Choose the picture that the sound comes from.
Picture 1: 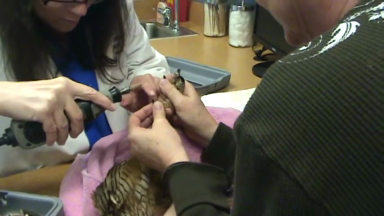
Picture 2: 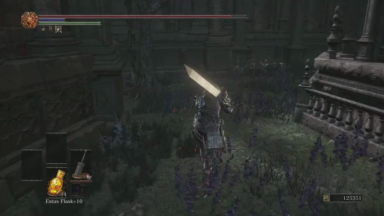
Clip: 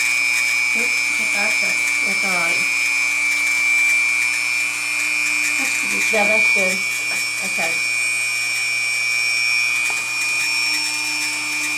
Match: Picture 1